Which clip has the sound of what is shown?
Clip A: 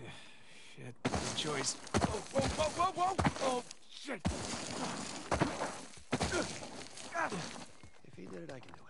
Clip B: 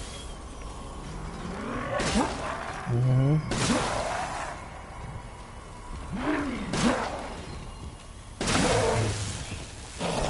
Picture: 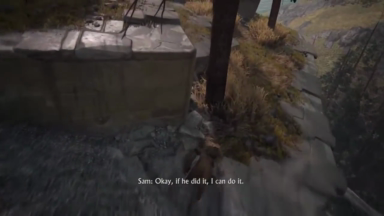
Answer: A